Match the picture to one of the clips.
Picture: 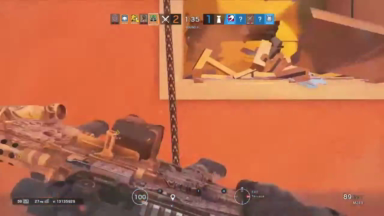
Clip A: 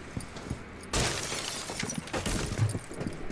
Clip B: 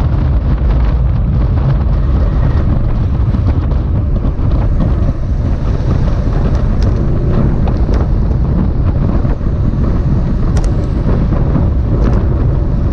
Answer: A